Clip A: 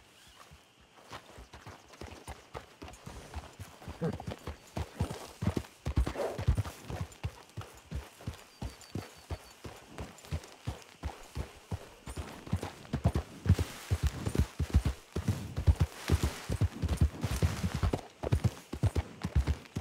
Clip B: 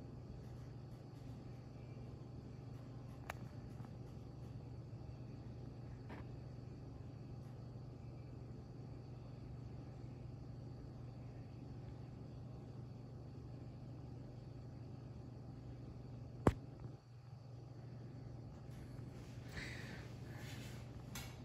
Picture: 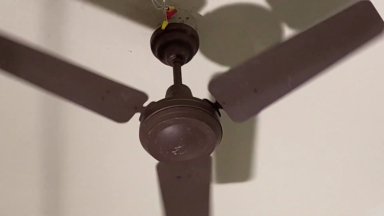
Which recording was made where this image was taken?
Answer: B